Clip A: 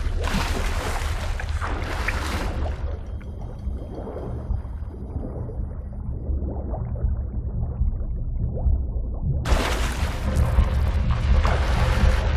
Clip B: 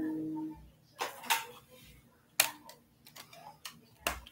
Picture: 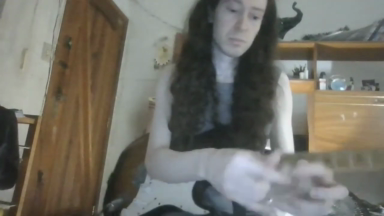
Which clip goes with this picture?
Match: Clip B